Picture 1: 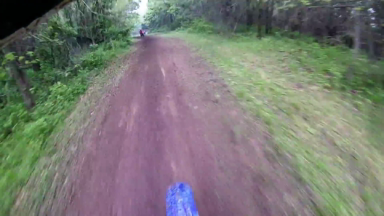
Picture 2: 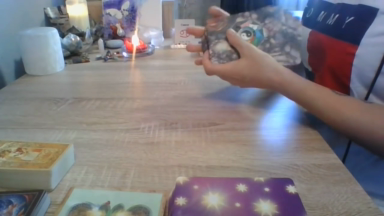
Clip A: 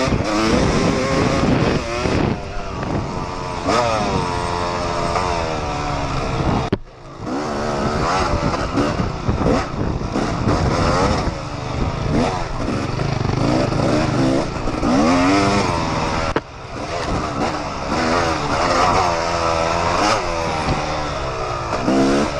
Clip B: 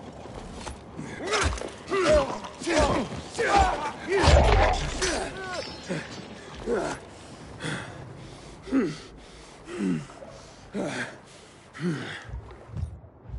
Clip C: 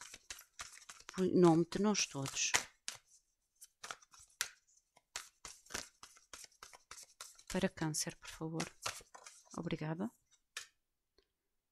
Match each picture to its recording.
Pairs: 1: A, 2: C